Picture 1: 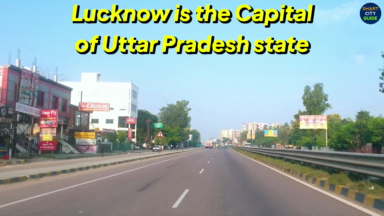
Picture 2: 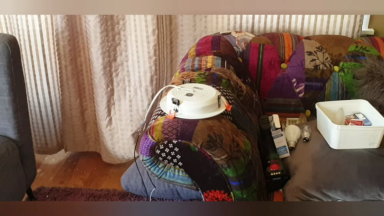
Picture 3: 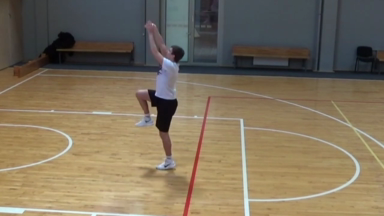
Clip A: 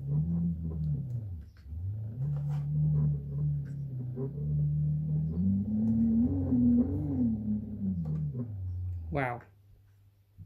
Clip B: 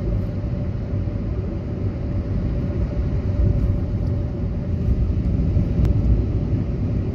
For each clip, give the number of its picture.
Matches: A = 2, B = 1